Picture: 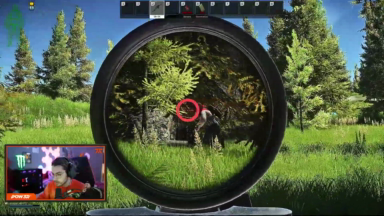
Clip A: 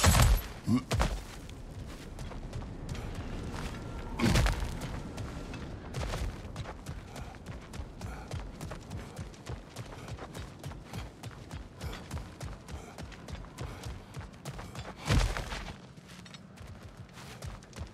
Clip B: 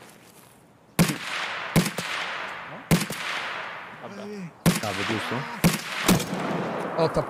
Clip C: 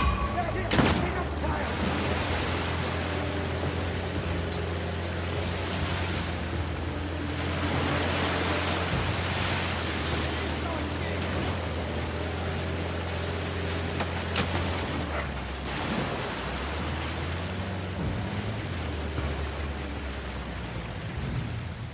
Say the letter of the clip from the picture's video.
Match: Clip B